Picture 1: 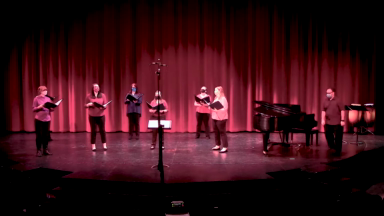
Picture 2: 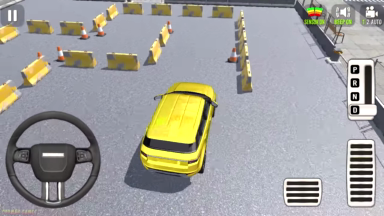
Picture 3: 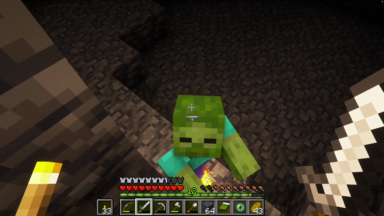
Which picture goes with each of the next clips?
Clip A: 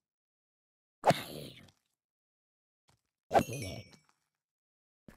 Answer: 3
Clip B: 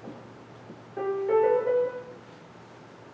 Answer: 1